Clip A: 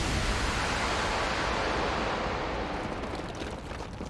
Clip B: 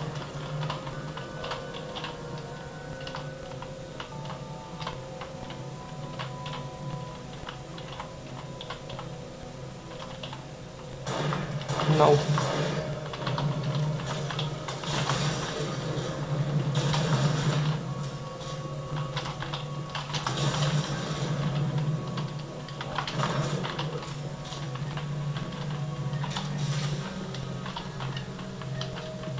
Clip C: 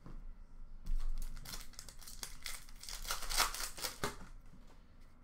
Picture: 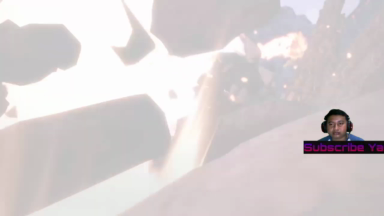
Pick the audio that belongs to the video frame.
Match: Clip A